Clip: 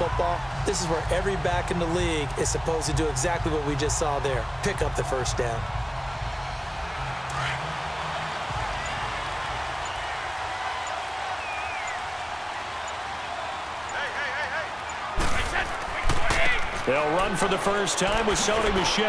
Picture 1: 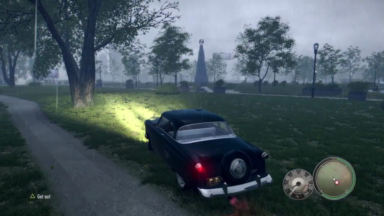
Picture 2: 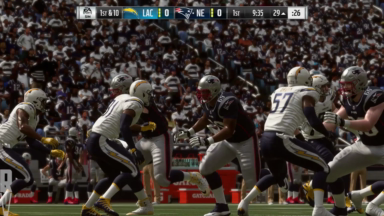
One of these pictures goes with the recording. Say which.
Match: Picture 2